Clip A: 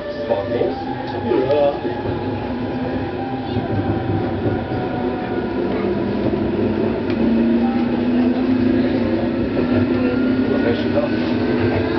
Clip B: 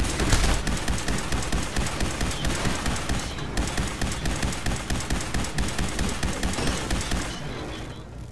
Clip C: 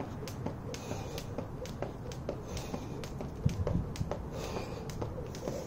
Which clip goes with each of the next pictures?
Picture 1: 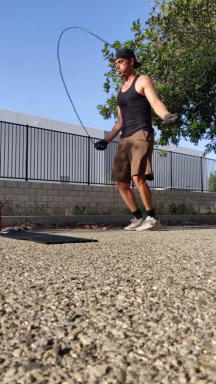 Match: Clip C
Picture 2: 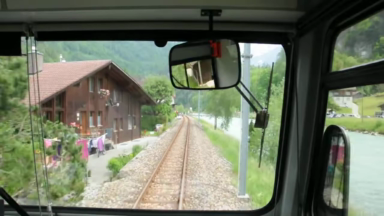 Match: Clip A